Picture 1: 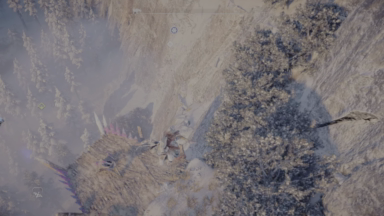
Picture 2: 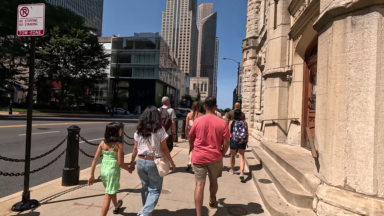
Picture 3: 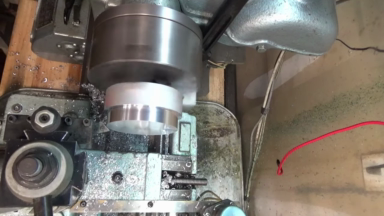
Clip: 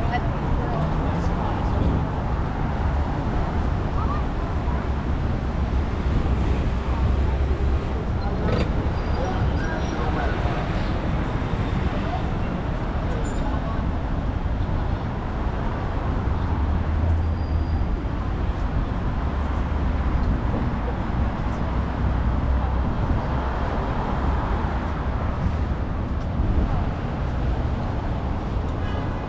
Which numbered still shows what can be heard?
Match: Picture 2